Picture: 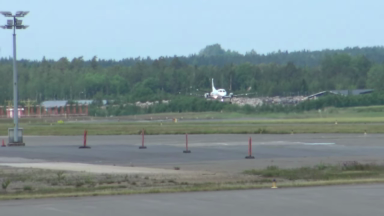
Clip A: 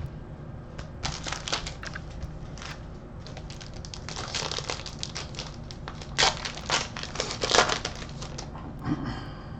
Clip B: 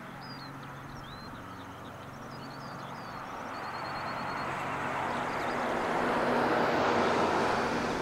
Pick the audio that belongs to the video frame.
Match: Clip B